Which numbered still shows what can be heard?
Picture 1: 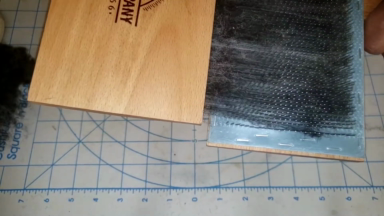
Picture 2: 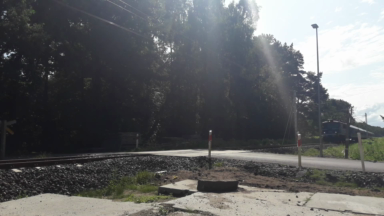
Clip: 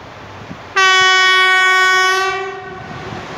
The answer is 2